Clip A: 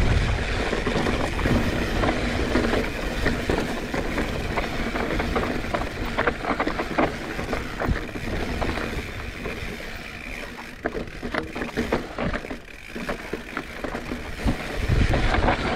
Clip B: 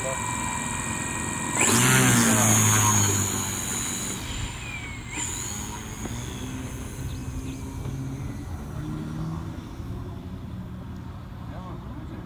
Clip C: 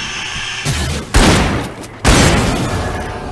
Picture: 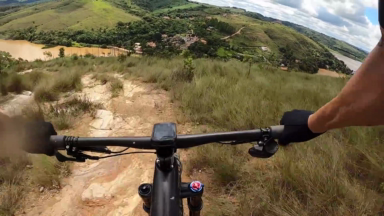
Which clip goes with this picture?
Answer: A